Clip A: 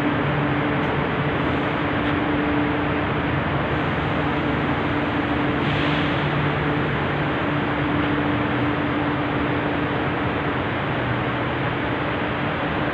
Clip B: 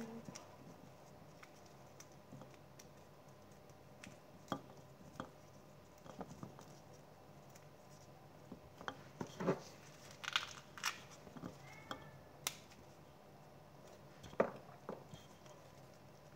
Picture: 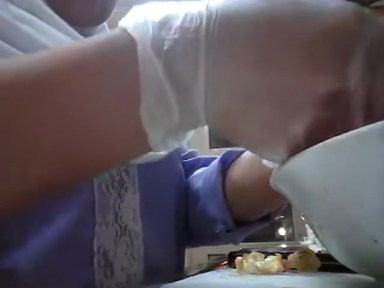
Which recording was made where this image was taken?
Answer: B